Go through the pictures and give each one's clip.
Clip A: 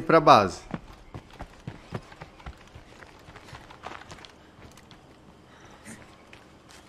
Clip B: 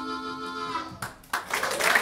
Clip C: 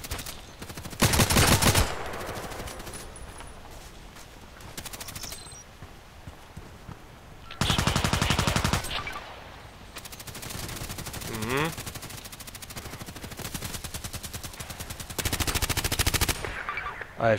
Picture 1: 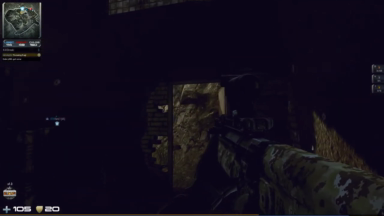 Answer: C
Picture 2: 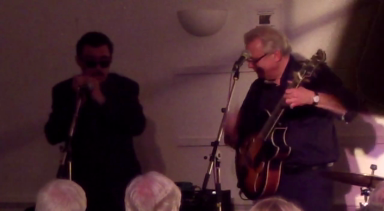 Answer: B